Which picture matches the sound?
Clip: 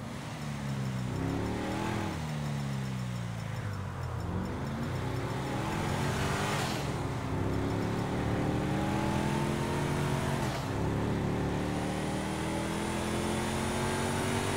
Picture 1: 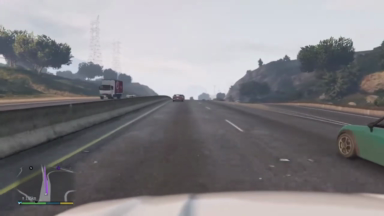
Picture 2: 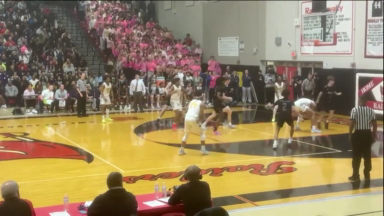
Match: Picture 1